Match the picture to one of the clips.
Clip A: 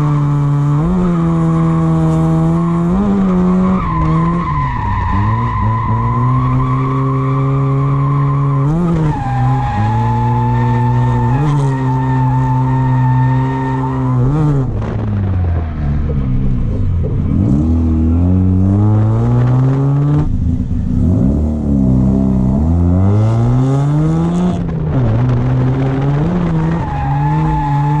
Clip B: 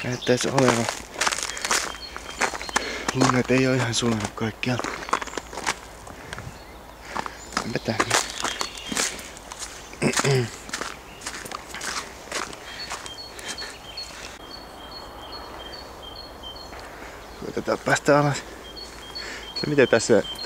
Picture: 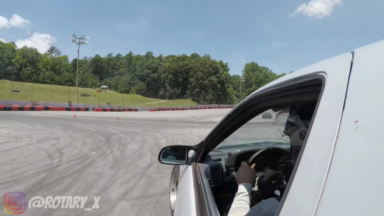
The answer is A